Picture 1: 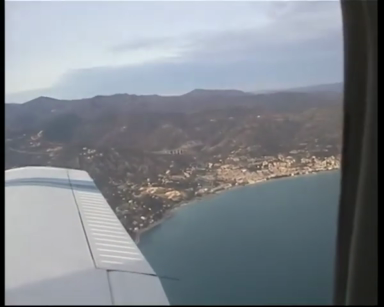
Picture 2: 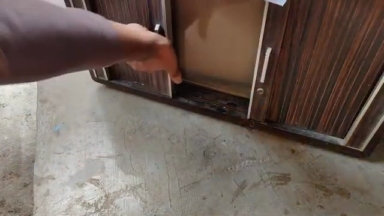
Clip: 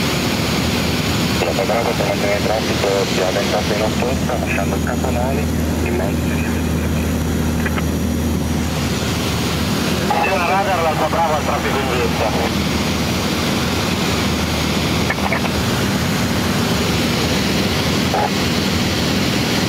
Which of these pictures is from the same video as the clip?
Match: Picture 1